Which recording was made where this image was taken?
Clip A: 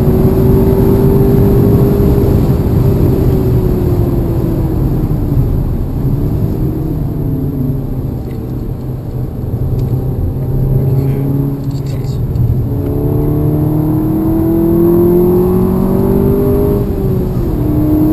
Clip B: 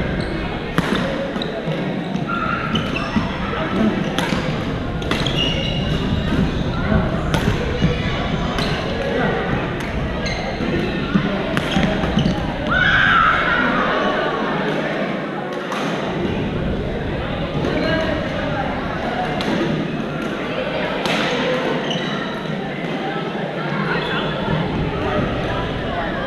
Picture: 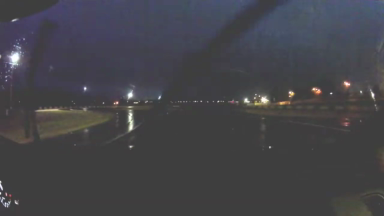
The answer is A